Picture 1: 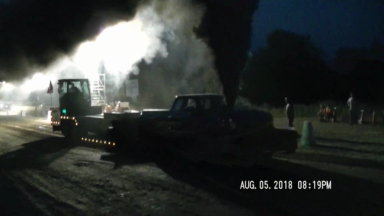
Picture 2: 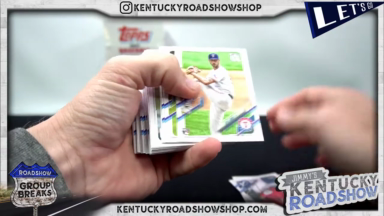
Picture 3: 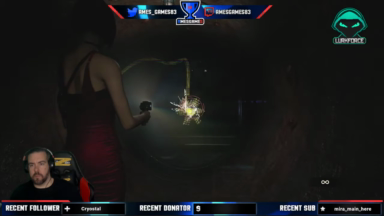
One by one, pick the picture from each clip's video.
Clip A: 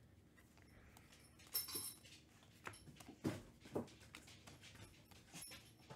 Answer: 2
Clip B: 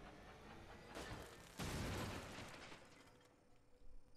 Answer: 3